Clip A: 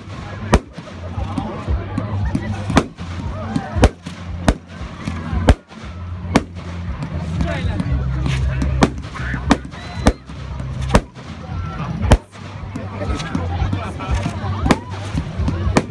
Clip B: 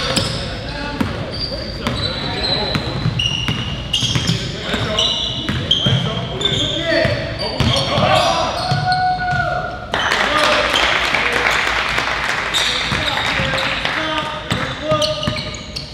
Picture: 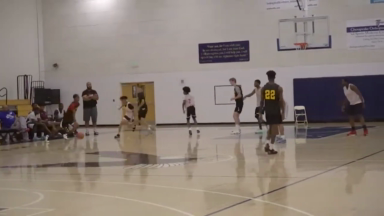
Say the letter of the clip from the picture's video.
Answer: B